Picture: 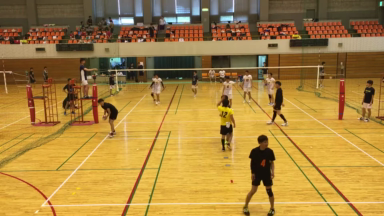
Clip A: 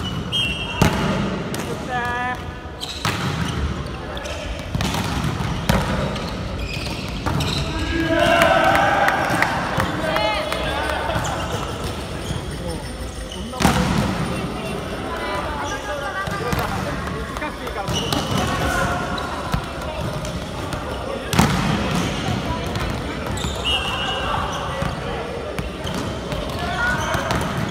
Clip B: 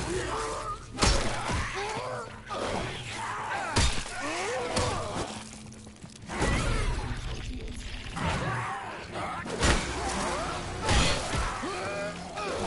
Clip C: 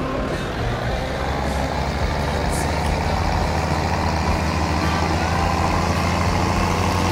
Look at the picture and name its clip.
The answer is A